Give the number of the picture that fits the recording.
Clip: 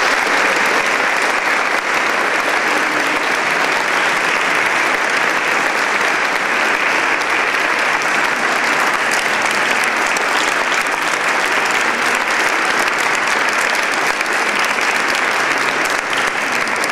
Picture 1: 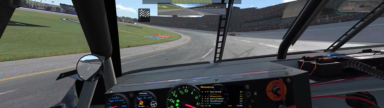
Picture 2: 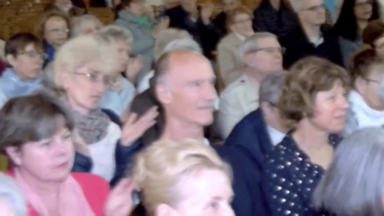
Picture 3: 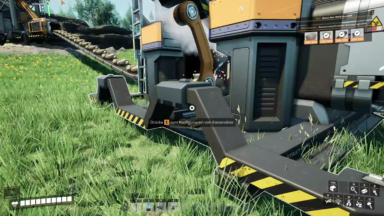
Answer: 2